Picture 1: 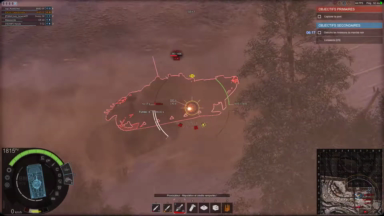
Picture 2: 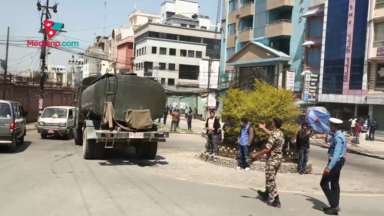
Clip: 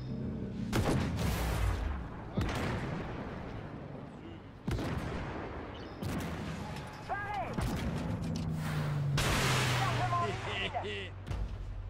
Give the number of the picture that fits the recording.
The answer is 1